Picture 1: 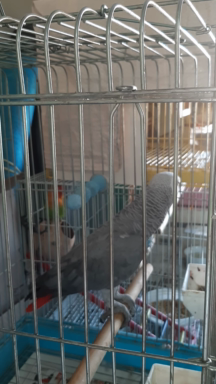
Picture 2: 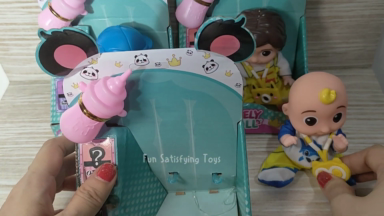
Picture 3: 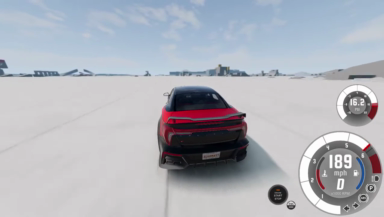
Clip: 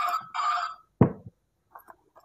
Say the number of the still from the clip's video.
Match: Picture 2